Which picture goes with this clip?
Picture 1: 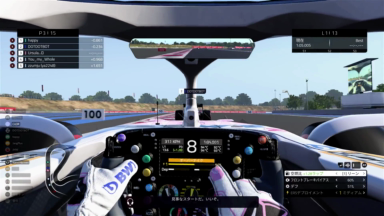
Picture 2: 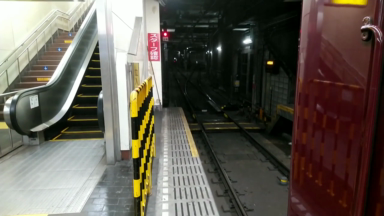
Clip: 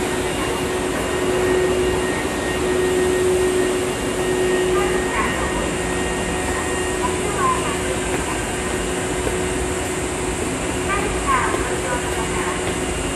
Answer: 2